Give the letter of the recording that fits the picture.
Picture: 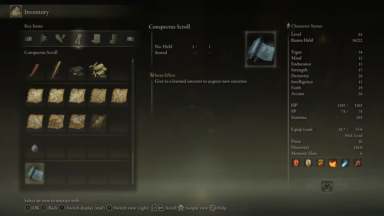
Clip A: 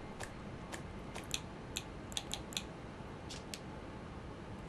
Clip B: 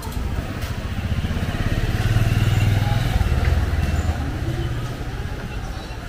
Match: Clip A